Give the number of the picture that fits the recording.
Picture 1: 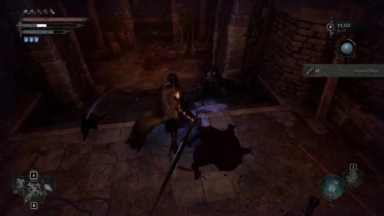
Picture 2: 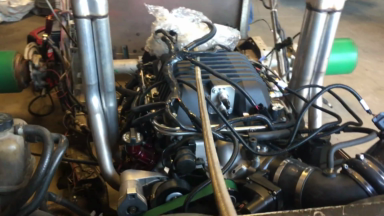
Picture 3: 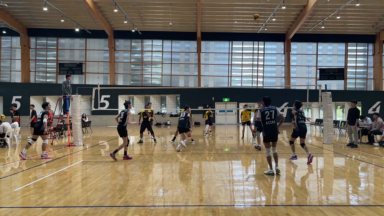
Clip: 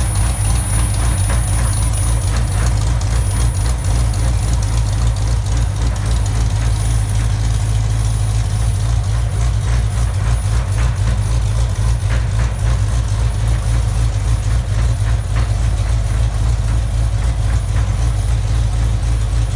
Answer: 2